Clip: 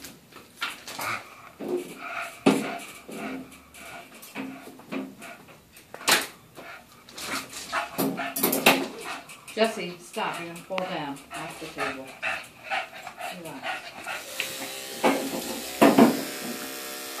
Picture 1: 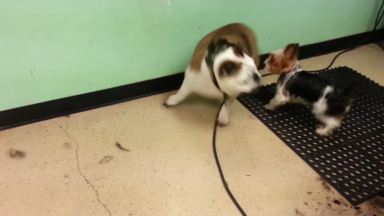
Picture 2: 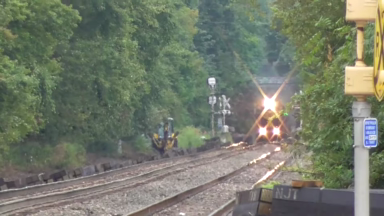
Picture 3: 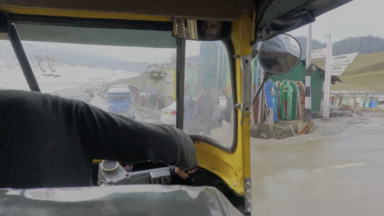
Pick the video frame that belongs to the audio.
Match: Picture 1